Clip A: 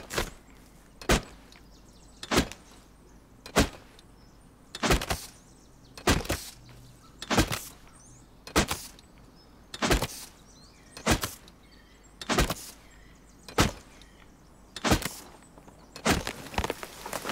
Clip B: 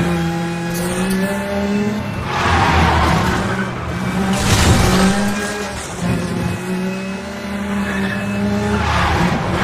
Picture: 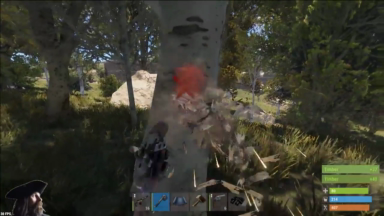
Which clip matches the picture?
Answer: A